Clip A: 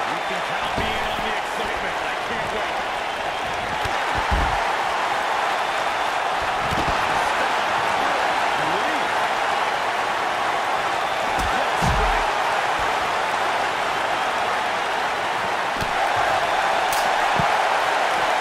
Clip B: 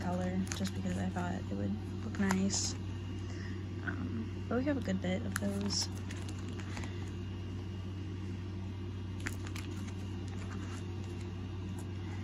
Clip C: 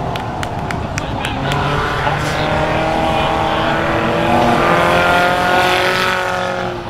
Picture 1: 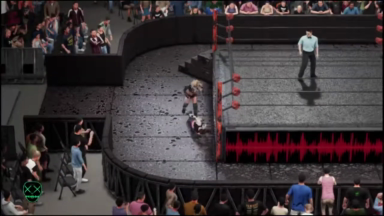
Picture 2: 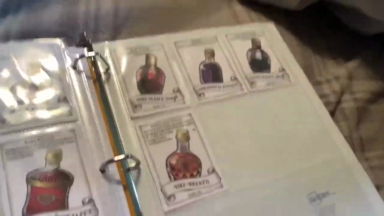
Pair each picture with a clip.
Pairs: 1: A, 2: B